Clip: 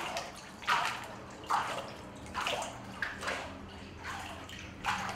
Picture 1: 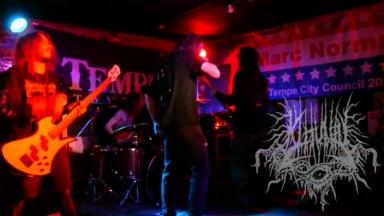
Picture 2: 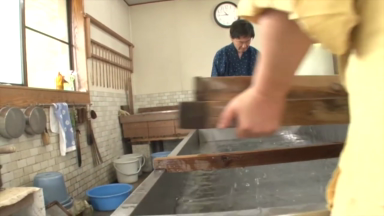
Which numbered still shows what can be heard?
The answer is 2